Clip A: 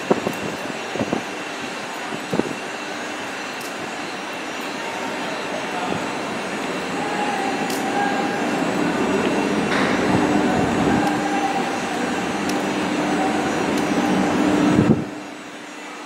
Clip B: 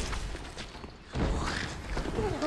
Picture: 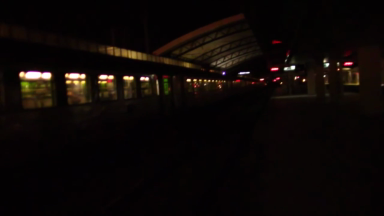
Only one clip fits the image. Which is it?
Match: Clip A